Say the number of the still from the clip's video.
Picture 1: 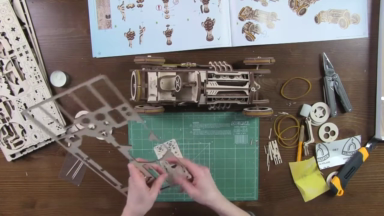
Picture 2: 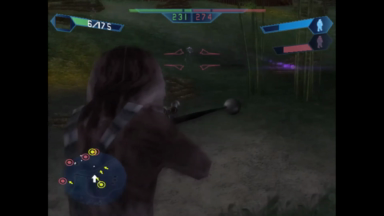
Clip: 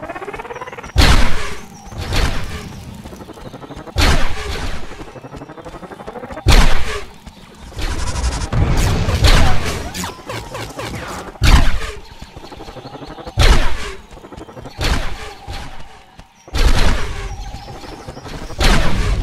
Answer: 2